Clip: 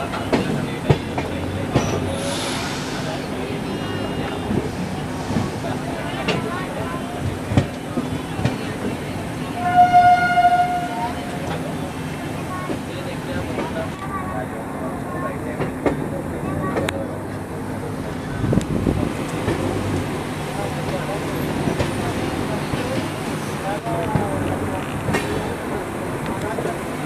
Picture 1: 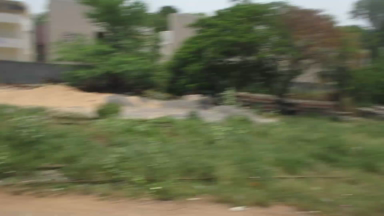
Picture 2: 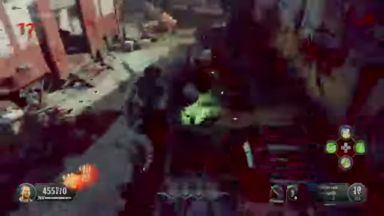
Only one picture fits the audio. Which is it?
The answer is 1